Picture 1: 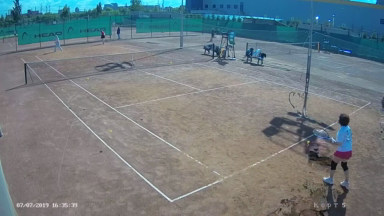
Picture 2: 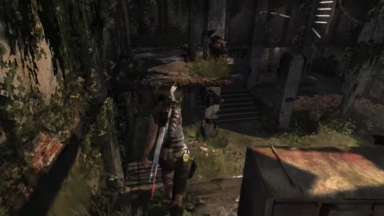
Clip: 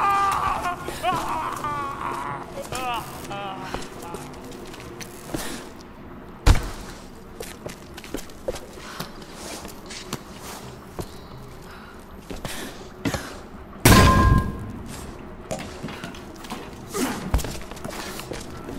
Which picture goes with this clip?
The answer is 2